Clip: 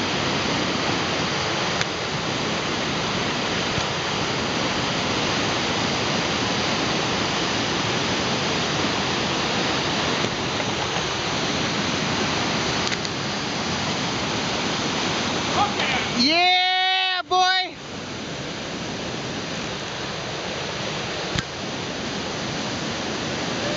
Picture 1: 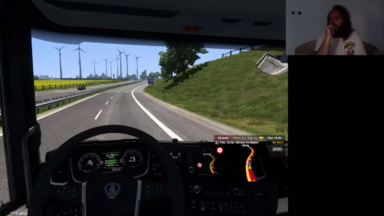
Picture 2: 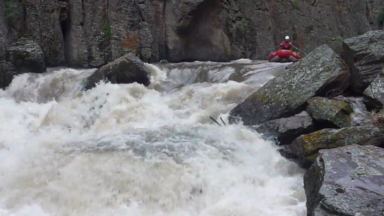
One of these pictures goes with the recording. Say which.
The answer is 2